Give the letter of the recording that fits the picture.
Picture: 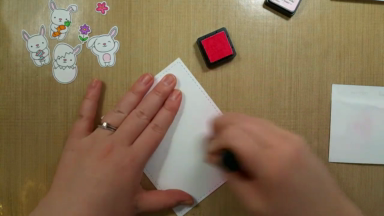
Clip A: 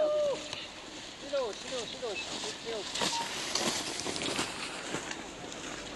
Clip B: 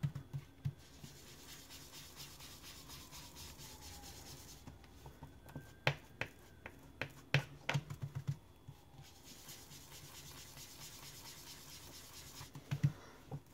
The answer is B